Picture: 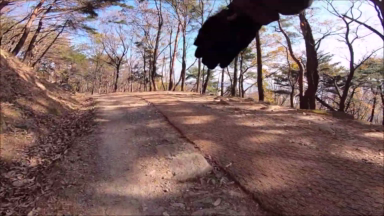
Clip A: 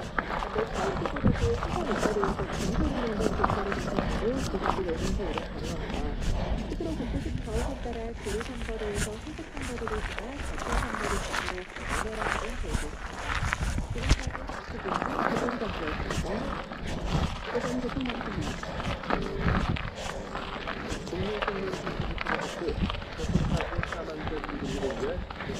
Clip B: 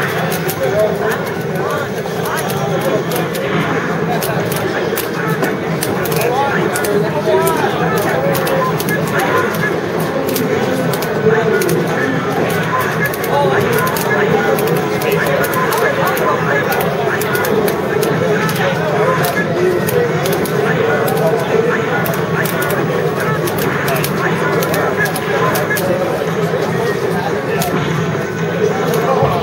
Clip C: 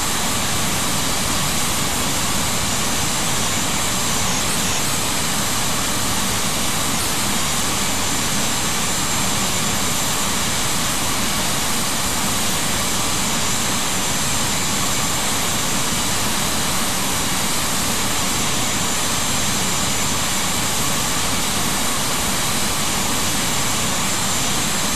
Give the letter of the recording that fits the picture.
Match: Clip A